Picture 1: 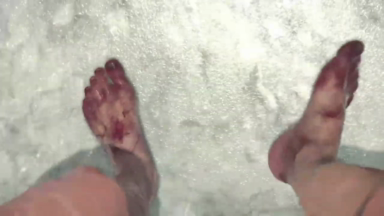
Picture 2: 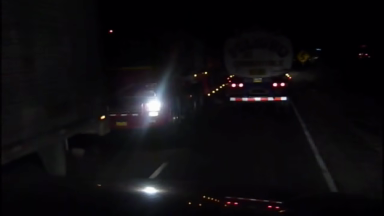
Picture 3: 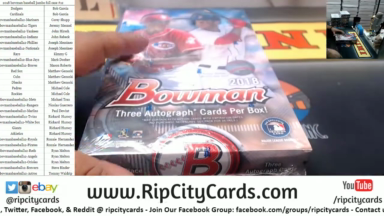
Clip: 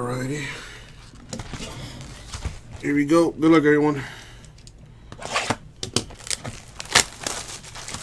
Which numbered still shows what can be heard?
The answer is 3